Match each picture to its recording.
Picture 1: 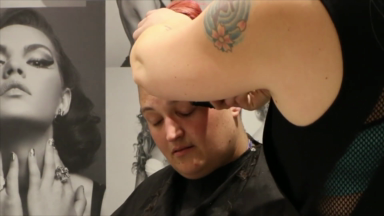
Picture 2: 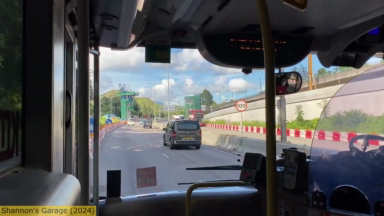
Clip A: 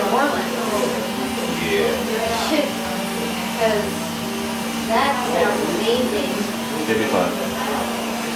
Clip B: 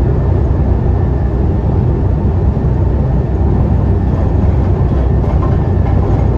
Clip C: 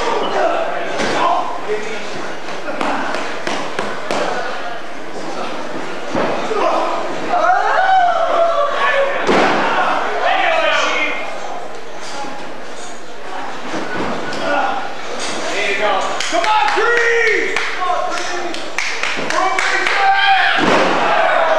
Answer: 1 A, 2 B